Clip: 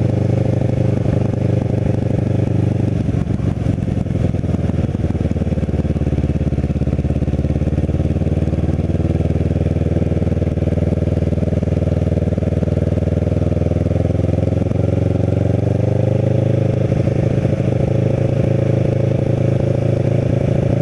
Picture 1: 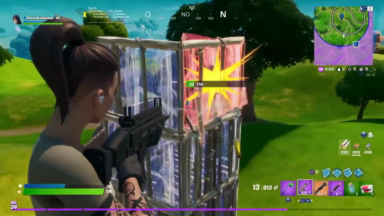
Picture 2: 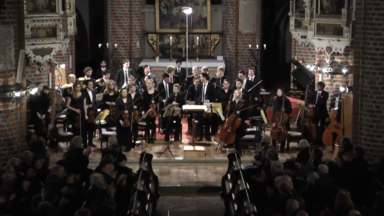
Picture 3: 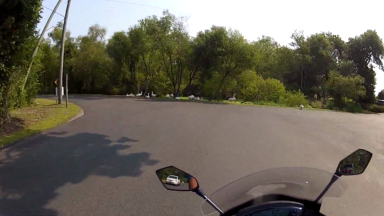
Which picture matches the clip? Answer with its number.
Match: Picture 3